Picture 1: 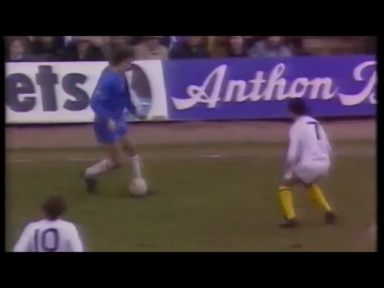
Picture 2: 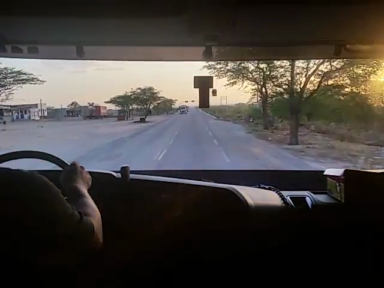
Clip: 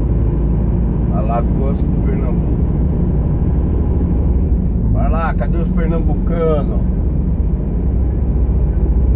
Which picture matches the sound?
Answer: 2